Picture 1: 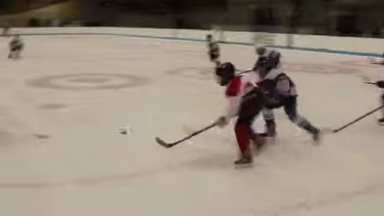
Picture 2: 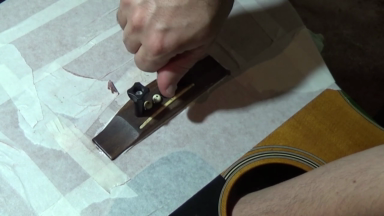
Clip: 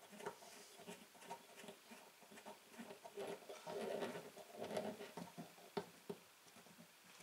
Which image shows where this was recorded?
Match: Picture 2